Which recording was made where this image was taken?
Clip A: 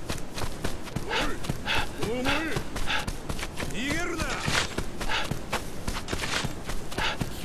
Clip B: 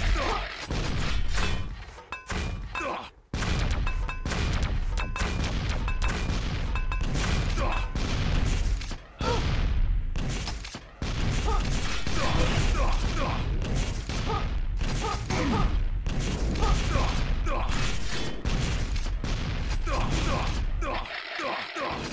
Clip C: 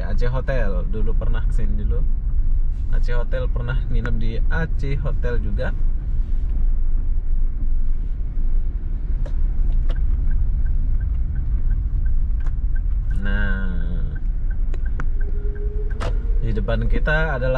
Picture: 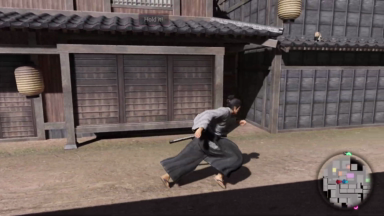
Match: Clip A